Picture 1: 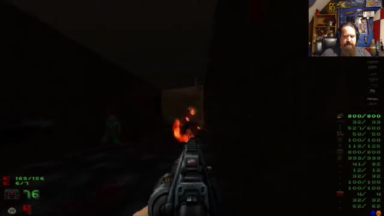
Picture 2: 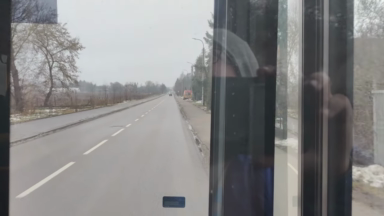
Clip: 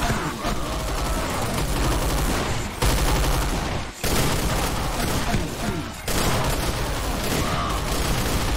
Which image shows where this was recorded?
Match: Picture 1